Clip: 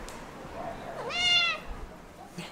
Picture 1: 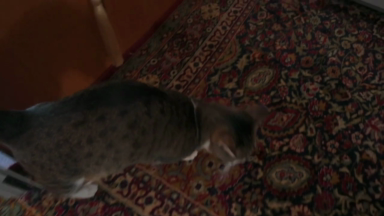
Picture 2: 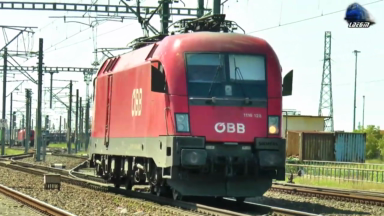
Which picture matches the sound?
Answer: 1